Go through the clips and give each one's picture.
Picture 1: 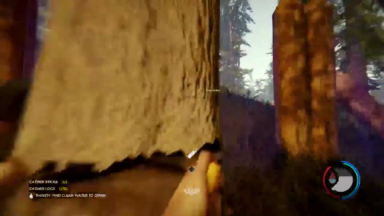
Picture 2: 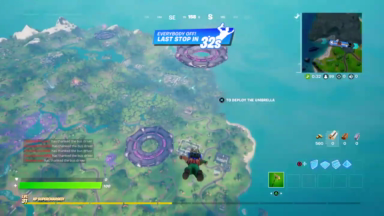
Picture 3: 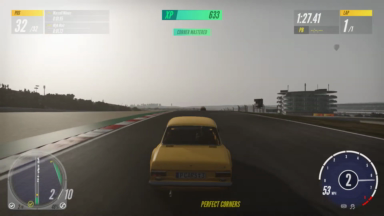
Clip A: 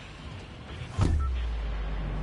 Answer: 2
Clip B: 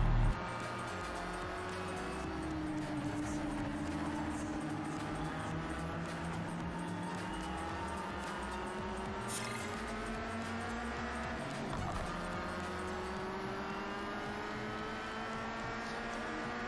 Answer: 3